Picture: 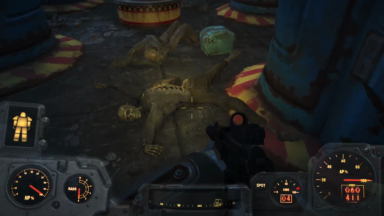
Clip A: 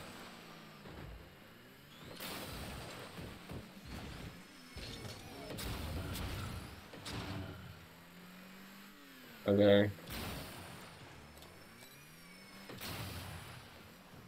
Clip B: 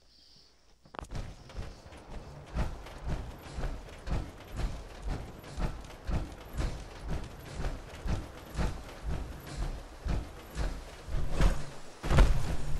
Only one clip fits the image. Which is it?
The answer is B